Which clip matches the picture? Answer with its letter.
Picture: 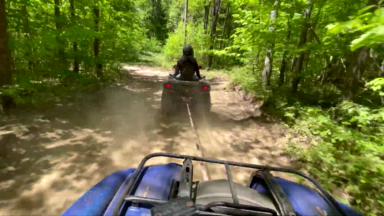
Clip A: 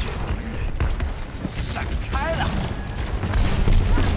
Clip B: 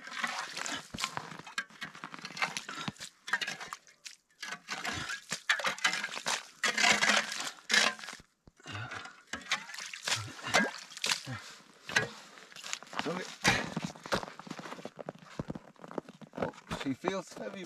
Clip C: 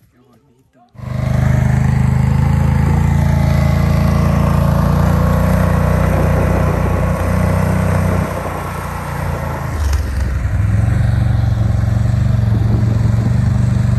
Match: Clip C